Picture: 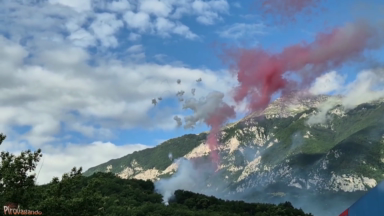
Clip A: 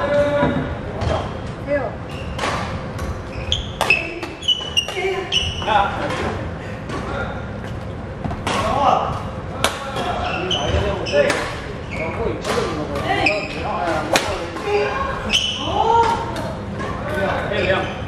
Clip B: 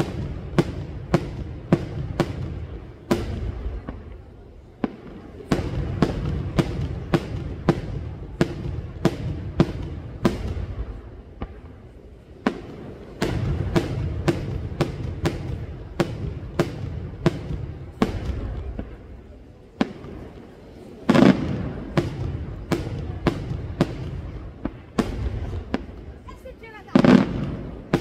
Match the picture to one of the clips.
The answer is B